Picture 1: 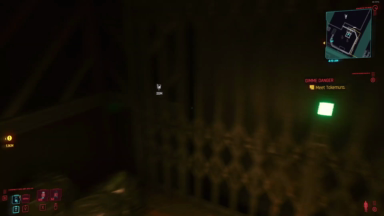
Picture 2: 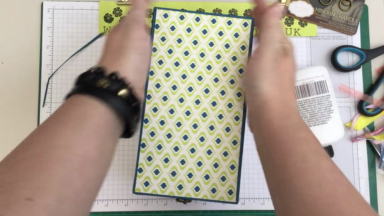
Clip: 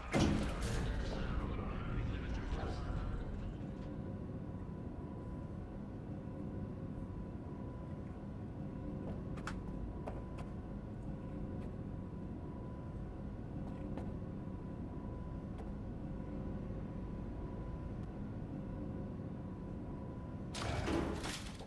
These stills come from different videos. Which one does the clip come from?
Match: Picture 1